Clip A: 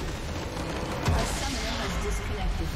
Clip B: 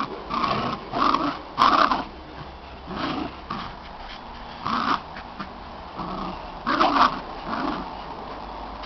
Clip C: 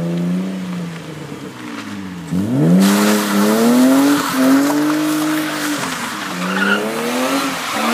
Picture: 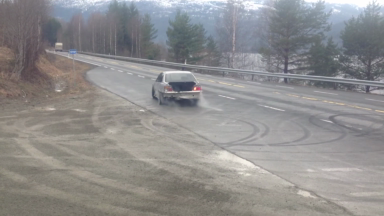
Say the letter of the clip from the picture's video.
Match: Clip C